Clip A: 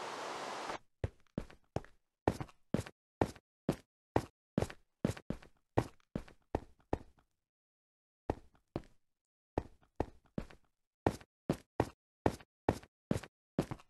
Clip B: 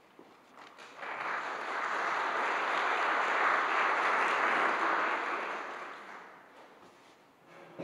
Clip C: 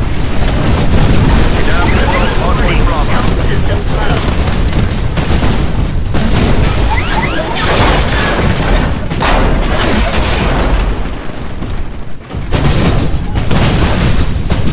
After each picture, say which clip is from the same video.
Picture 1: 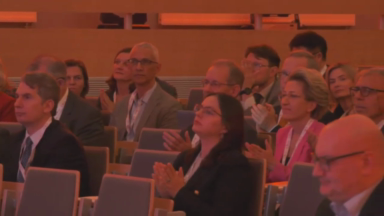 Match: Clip B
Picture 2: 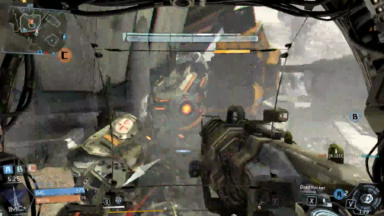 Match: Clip C